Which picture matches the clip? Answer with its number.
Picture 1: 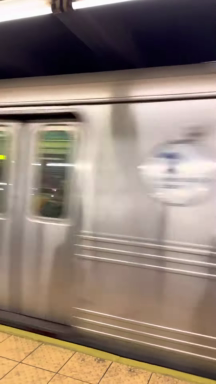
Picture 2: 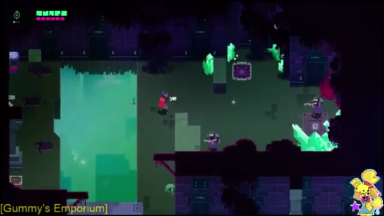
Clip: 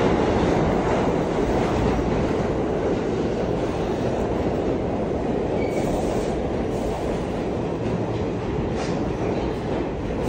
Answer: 1